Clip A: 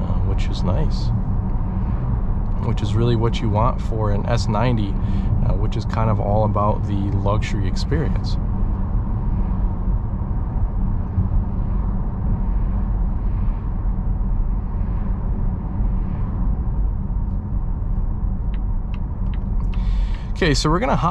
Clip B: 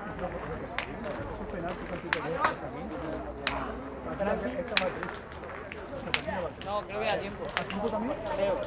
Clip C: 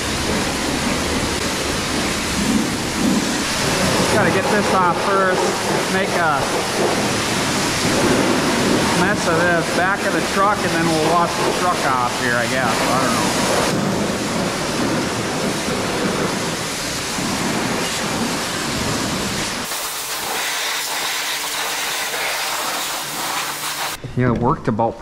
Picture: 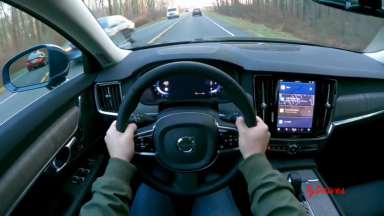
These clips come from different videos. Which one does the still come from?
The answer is A